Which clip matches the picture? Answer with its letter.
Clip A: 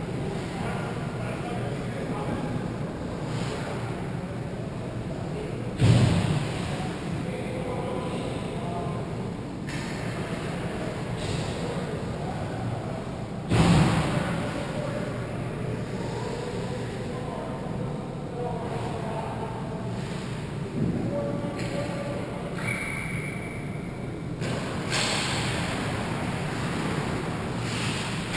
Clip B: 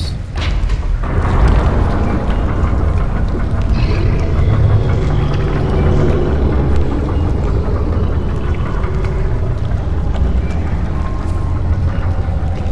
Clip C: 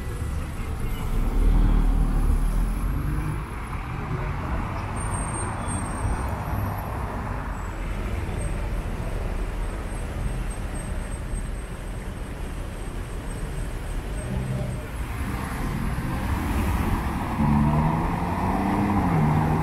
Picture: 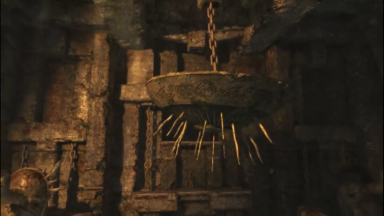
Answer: B